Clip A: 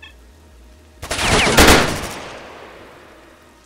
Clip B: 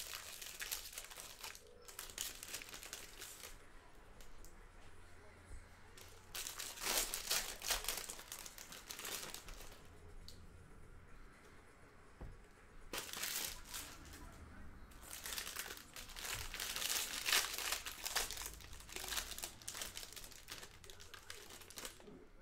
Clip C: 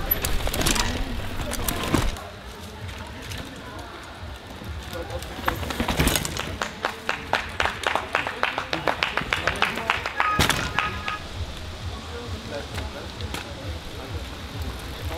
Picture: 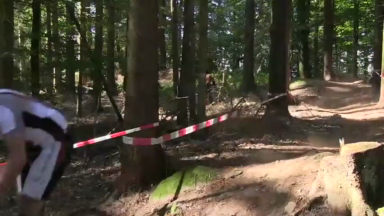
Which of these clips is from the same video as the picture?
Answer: C